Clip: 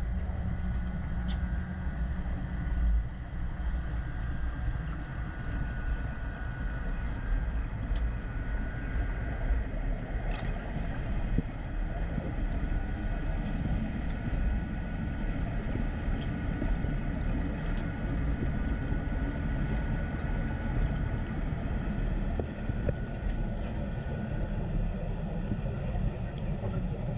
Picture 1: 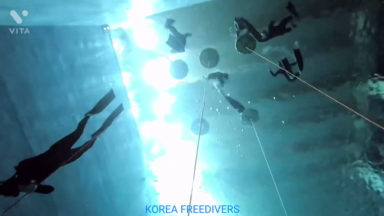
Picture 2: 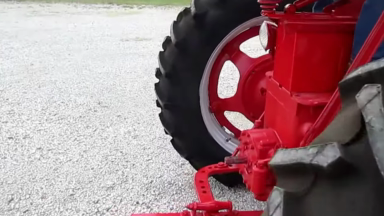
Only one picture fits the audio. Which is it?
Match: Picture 1